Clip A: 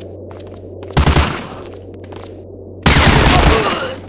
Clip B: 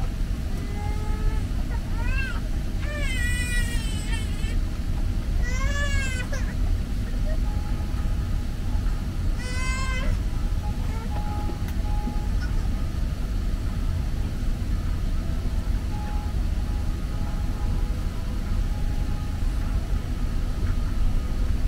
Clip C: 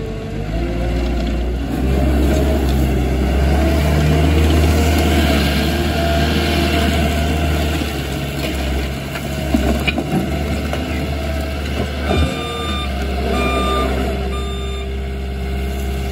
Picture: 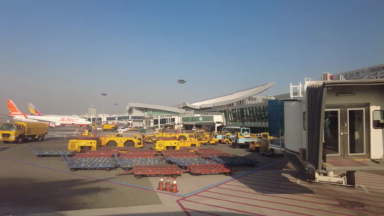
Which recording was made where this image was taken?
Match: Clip B